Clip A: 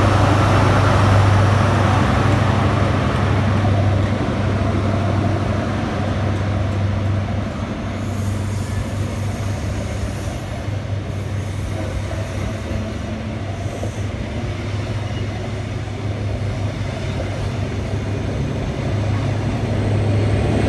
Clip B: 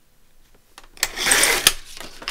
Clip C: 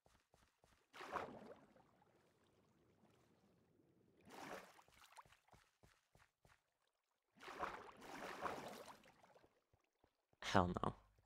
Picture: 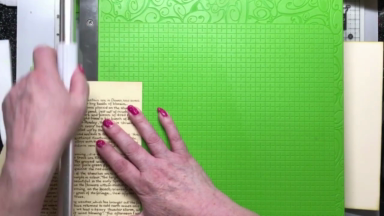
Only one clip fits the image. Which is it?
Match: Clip B